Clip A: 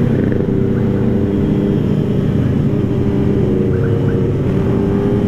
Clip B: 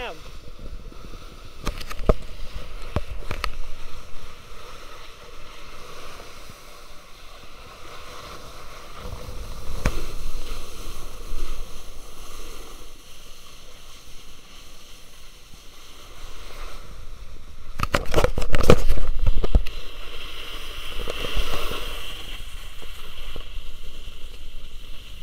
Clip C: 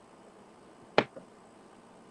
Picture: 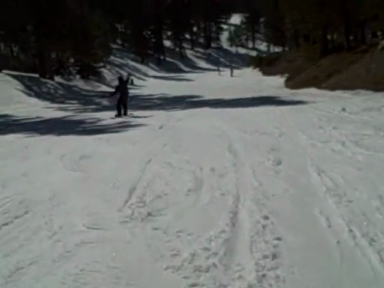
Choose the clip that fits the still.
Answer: B